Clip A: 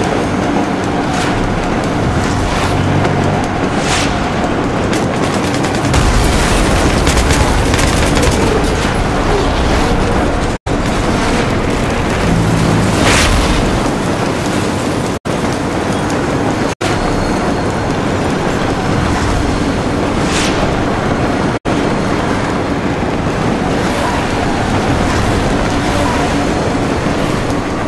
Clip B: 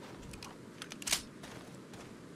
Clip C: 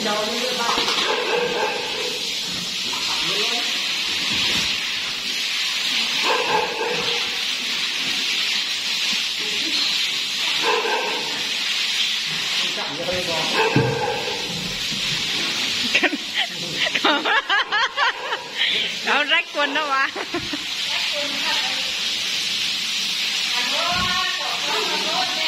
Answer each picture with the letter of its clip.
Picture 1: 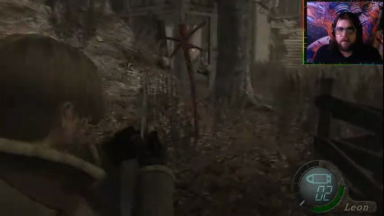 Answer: B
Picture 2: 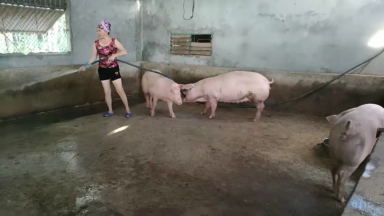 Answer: C